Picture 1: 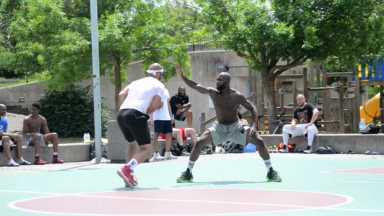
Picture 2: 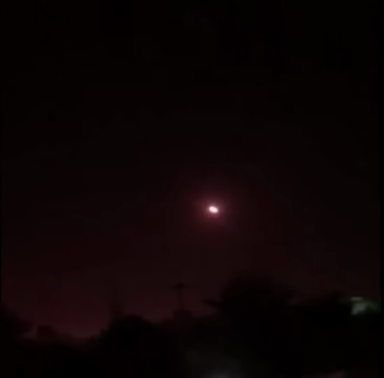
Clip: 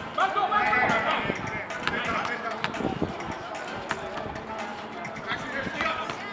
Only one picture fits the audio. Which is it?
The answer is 1